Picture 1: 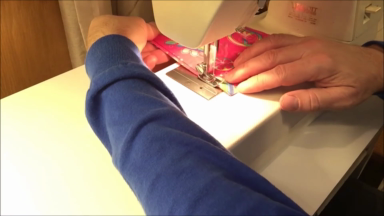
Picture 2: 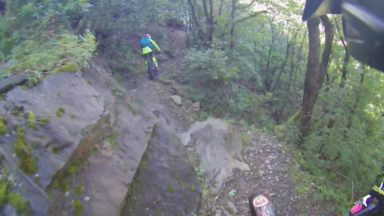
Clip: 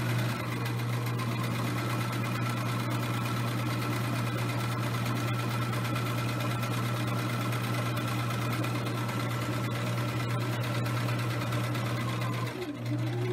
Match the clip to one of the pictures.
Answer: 1